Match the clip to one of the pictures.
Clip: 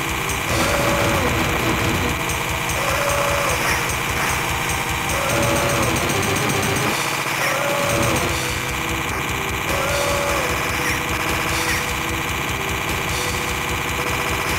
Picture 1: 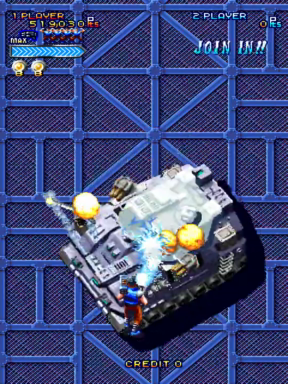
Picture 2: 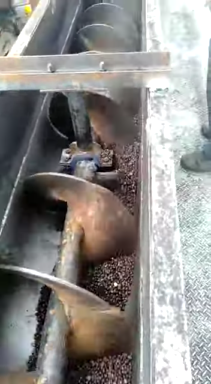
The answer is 1